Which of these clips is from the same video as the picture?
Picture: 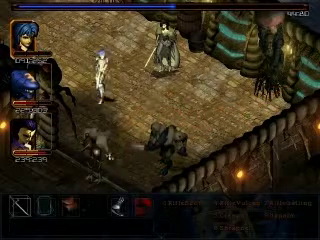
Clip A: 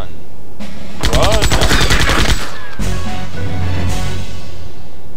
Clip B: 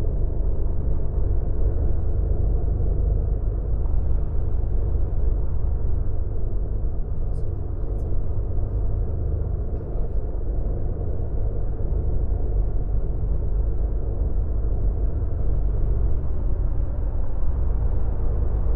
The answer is A